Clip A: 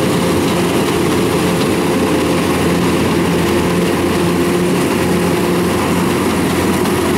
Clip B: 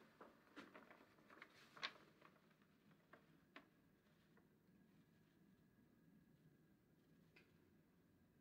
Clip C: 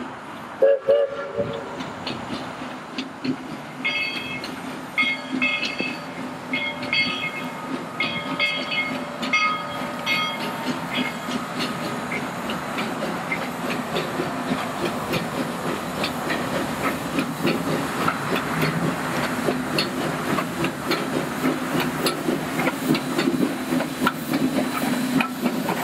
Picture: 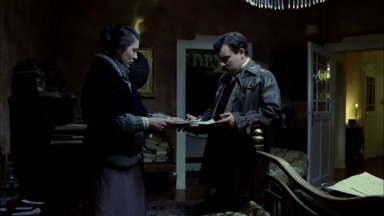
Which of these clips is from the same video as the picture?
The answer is B